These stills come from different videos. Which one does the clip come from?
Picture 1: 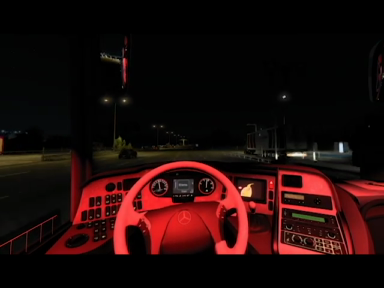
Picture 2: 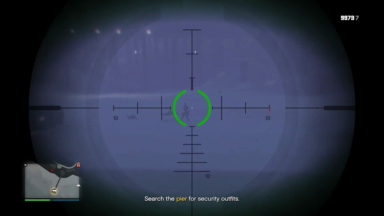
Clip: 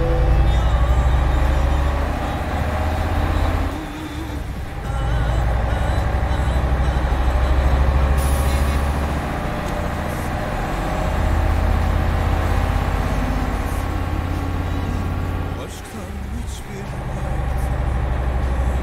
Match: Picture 1